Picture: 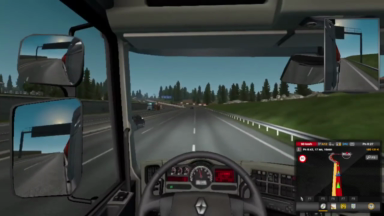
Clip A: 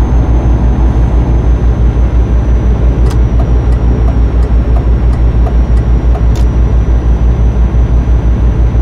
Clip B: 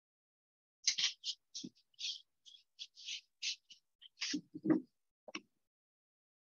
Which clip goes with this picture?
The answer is A